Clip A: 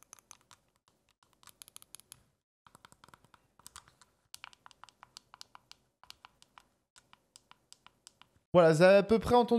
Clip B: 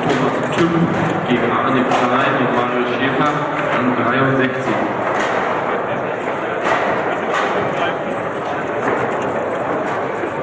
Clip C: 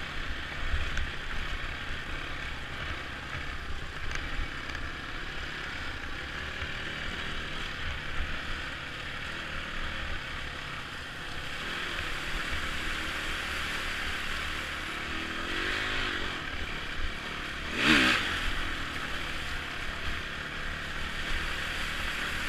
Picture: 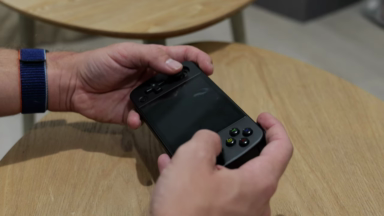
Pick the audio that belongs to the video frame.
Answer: A